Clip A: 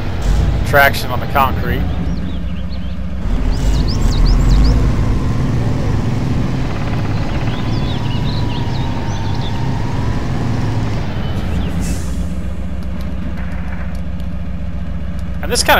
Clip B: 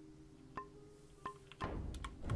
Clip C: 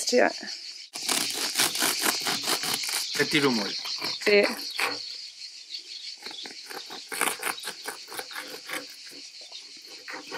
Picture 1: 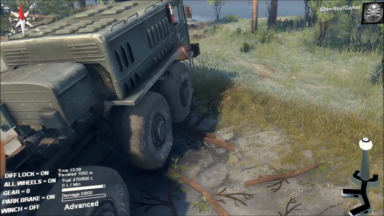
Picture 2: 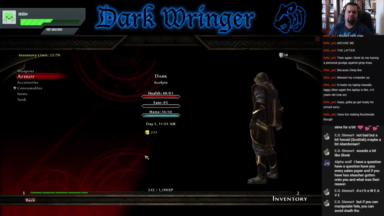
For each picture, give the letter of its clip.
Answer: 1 A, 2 B